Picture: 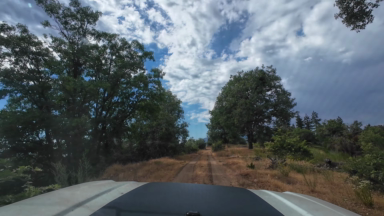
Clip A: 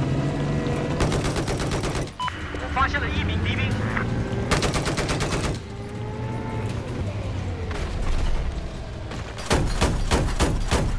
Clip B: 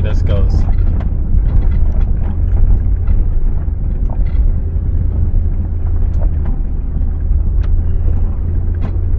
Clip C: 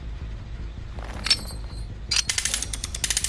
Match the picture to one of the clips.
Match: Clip B